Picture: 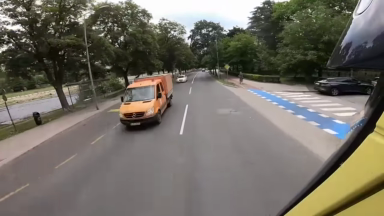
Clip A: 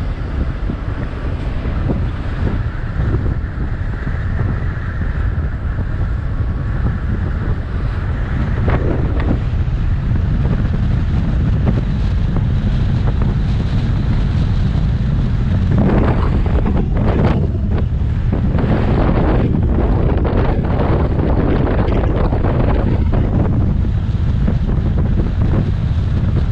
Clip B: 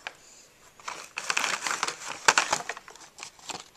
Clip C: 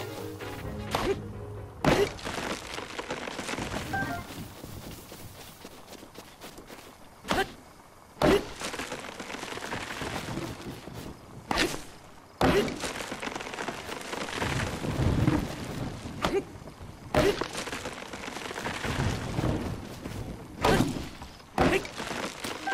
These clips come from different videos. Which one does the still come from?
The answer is A